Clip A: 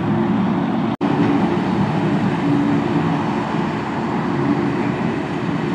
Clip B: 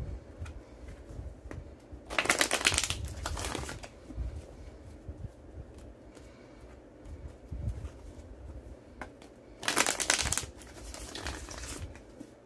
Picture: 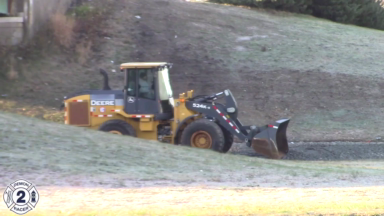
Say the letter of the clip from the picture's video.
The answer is A